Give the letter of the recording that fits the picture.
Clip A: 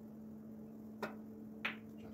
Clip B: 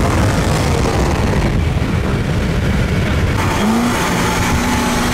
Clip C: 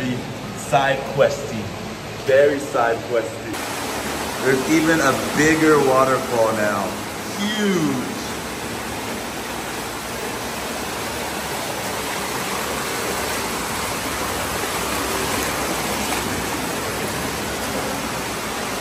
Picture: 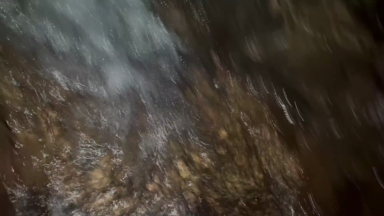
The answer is C